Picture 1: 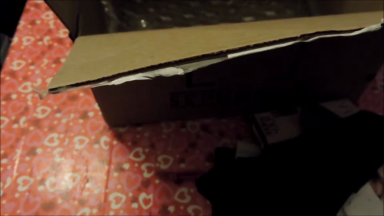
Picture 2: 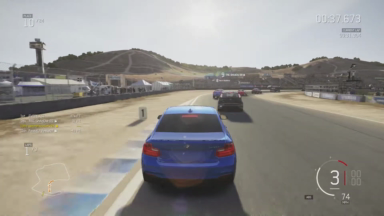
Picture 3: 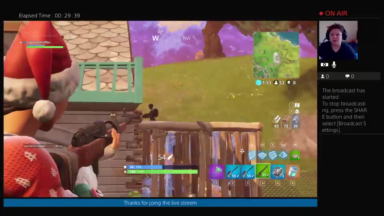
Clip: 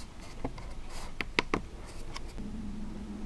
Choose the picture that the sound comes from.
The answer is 1